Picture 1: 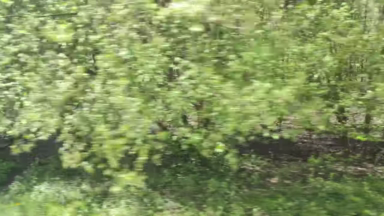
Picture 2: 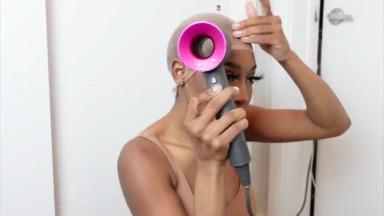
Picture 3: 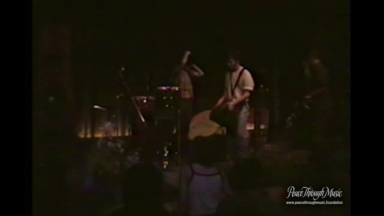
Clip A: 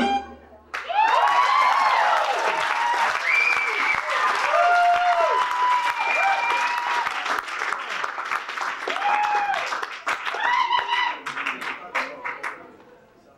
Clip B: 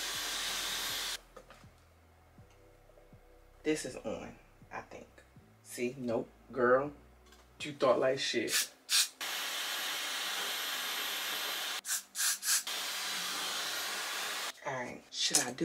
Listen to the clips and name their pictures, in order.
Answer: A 3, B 2